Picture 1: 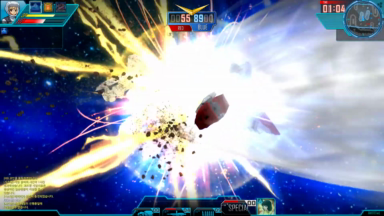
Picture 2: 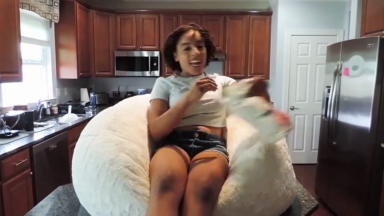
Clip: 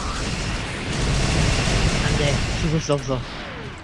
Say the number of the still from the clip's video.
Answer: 1